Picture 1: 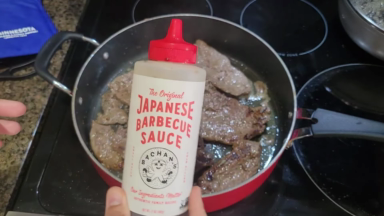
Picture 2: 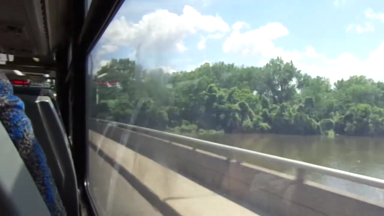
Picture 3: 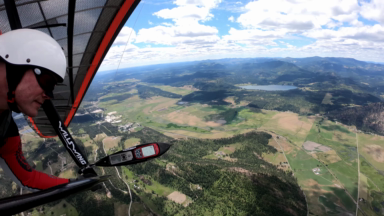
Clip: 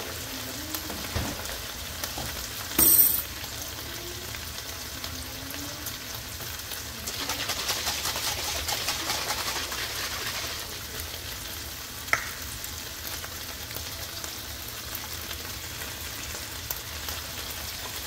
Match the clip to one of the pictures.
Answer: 1